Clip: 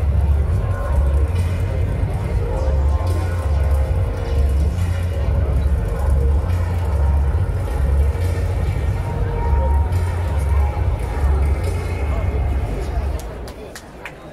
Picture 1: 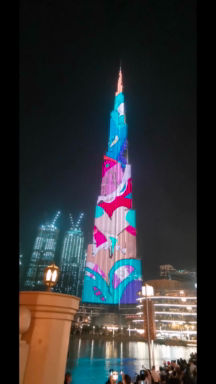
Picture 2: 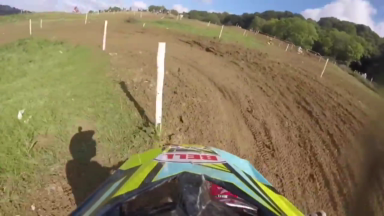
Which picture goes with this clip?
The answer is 1